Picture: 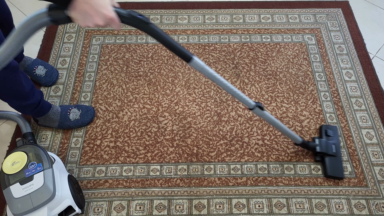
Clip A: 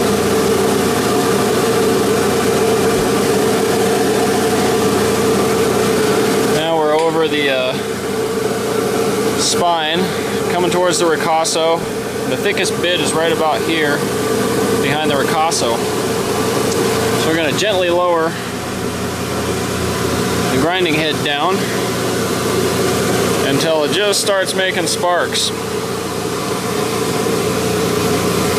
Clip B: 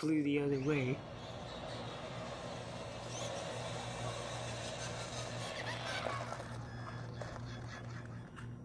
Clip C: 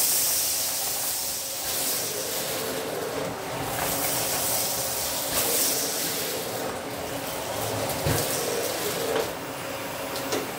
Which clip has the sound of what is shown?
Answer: C